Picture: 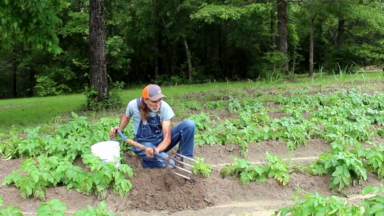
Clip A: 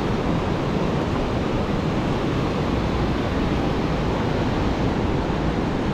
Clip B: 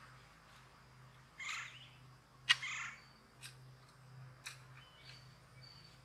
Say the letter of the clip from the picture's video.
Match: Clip B